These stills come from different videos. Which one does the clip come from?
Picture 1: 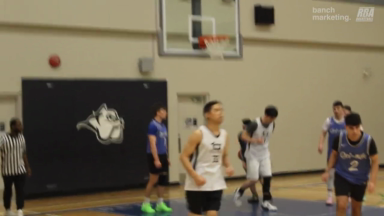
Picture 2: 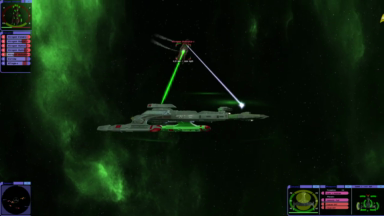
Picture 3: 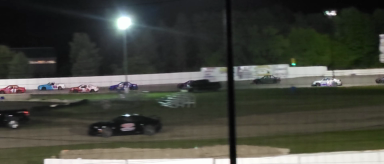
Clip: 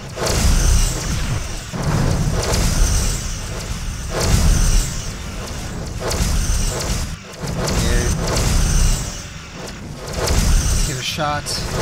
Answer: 2